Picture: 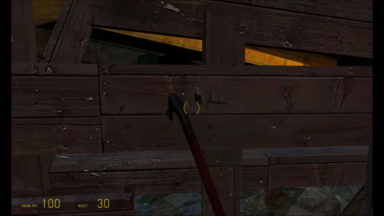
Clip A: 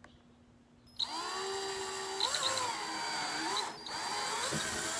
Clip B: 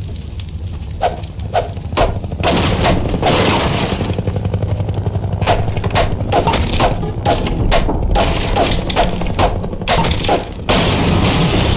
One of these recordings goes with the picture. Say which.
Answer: B